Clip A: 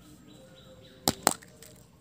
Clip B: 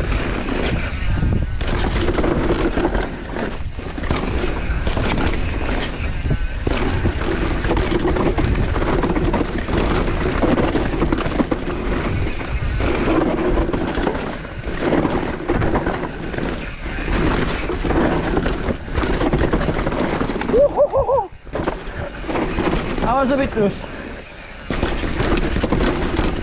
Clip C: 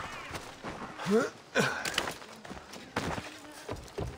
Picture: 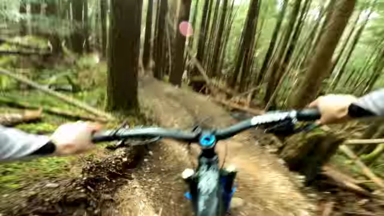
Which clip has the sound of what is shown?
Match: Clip B